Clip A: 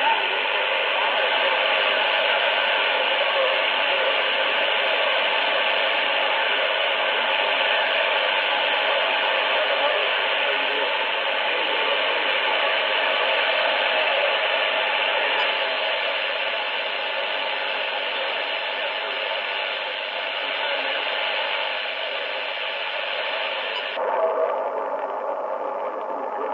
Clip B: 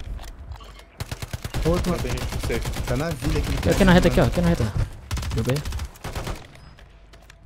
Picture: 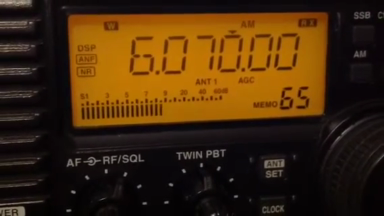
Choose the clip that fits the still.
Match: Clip A